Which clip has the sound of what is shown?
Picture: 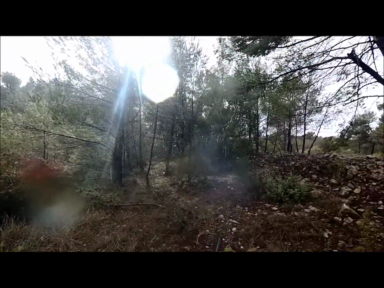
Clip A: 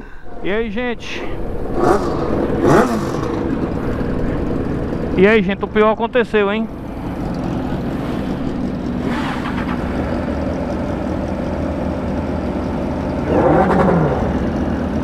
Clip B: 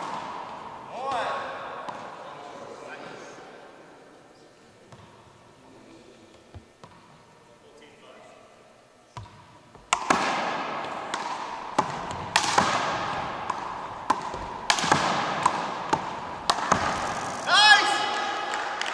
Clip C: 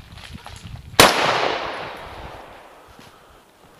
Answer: C